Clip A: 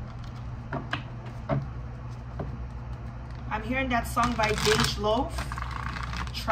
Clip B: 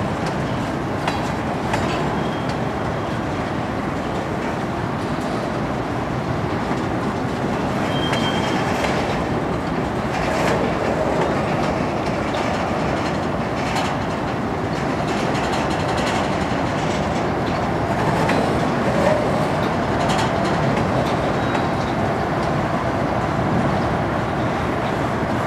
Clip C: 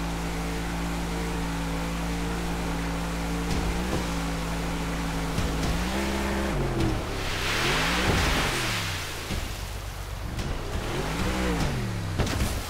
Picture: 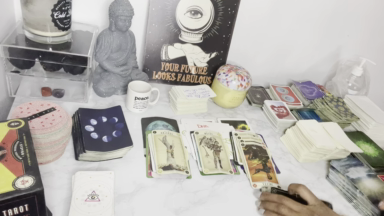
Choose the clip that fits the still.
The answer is A